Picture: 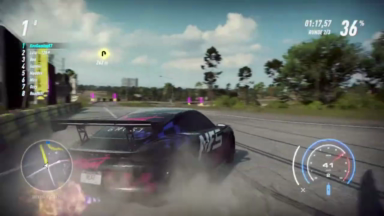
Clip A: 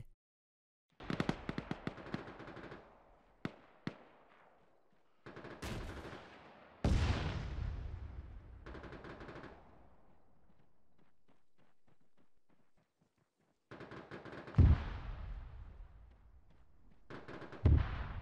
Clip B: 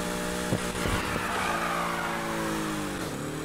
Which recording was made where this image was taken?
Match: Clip B